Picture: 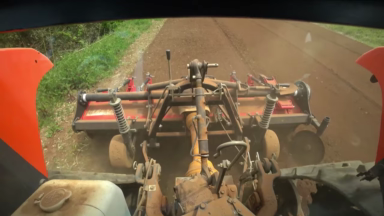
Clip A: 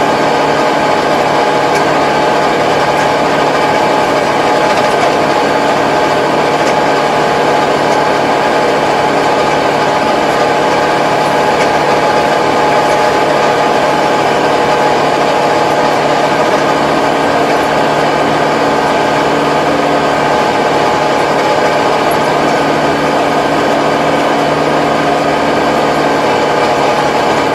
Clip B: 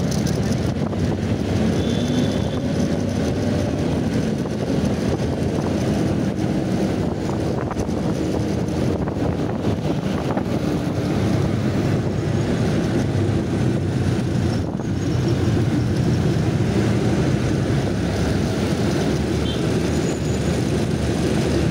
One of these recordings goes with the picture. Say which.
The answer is A